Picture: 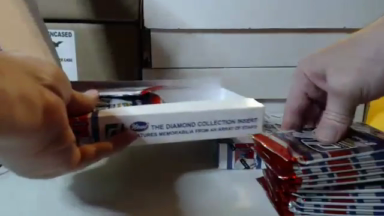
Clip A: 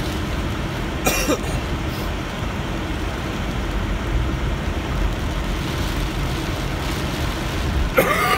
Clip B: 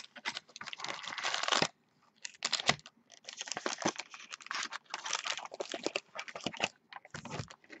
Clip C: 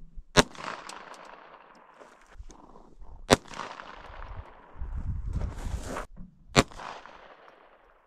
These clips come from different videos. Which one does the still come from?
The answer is B